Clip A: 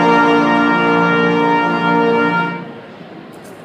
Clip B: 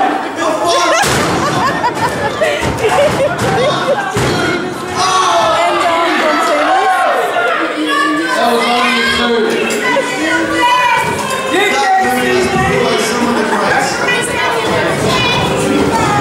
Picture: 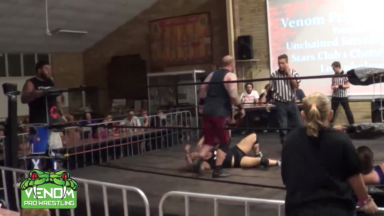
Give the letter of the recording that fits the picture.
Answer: B